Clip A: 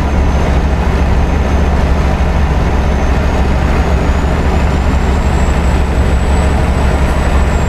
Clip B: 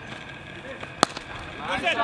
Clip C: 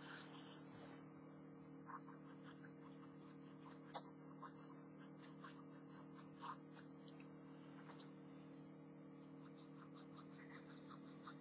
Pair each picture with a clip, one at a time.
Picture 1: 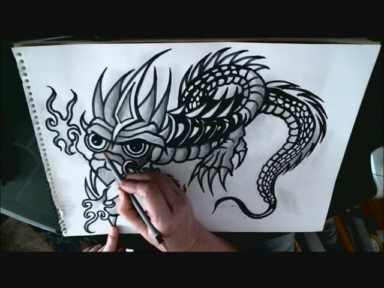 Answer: C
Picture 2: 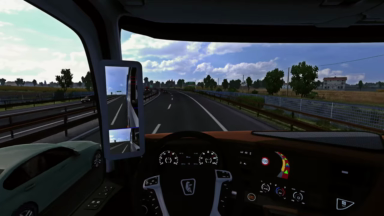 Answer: A